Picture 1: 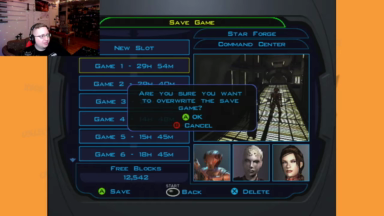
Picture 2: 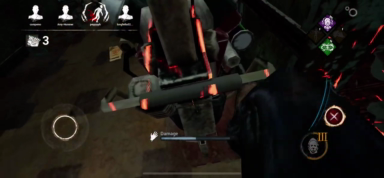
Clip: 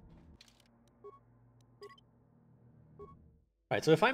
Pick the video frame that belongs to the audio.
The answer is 1